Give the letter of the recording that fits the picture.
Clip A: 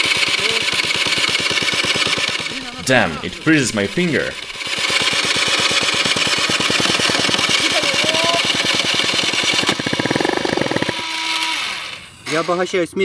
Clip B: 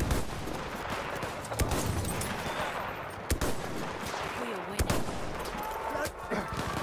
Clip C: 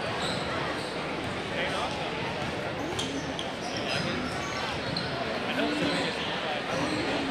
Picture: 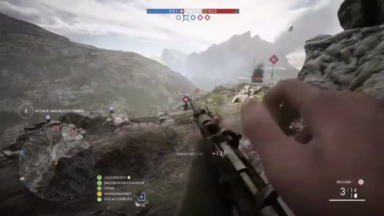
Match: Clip B